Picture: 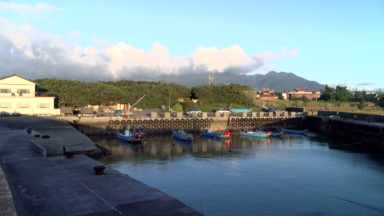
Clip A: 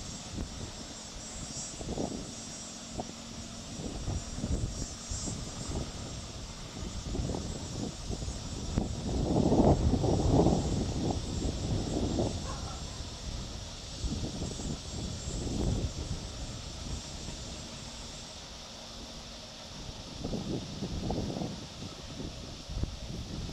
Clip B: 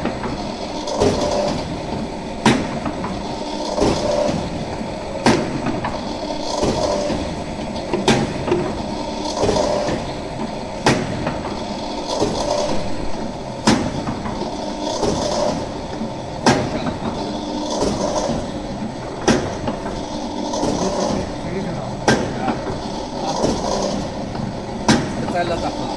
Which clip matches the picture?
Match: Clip A